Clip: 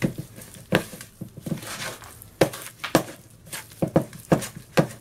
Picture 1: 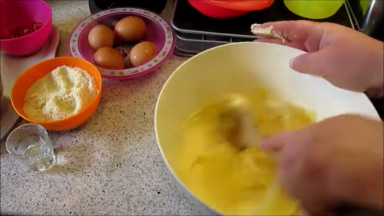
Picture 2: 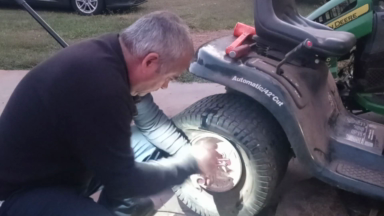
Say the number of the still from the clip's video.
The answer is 1